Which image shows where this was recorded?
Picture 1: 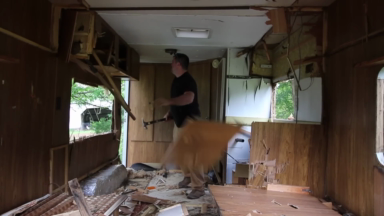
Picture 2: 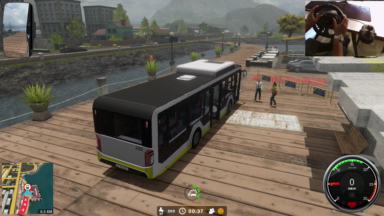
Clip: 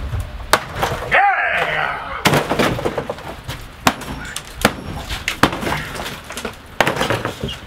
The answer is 1